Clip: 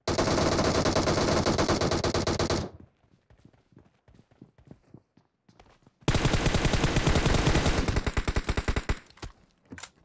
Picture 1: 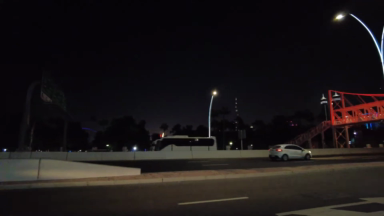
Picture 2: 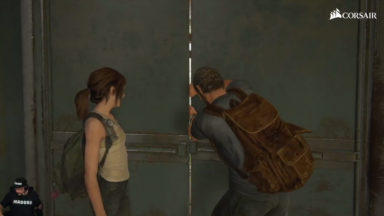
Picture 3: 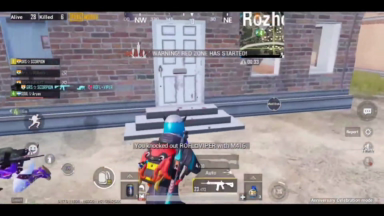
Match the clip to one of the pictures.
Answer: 3